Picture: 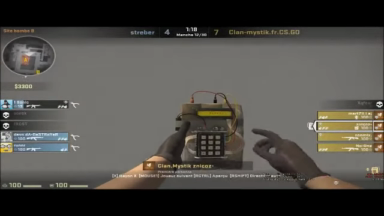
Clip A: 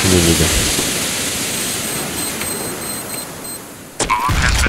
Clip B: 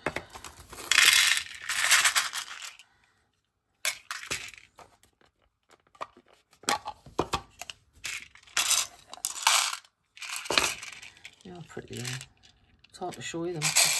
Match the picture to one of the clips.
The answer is A